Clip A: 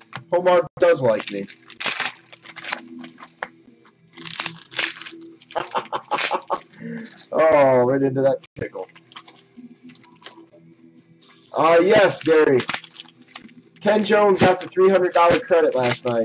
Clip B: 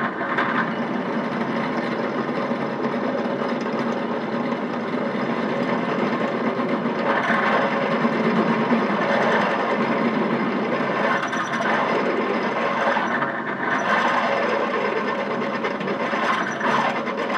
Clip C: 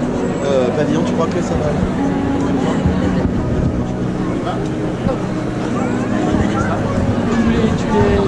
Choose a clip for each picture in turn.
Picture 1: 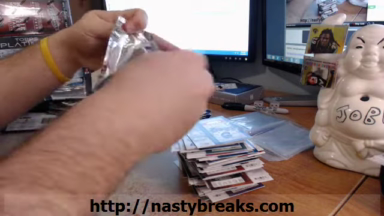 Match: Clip A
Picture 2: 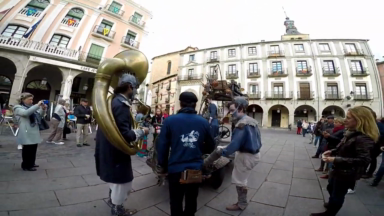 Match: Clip C